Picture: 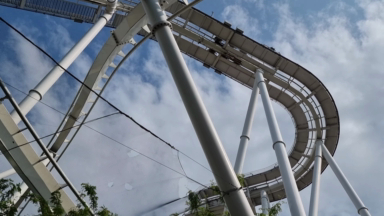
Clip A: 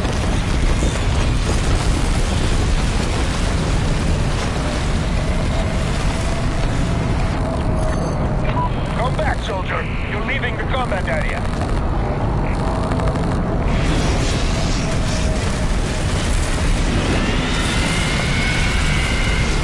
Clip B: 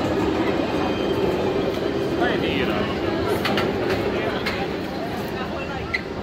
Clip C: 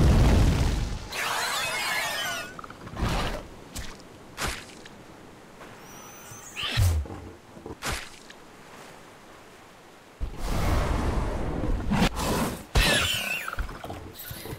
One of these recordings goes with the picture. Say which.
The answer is B